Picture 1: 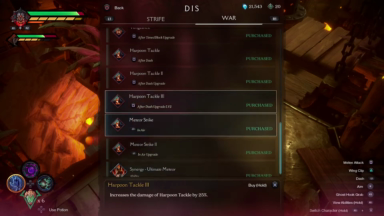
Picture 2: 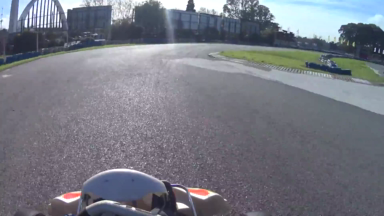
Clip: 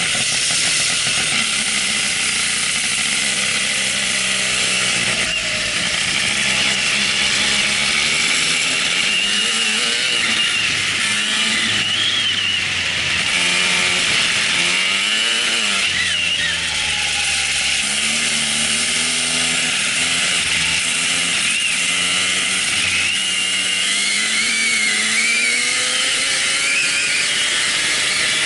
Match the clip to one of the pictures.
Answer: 2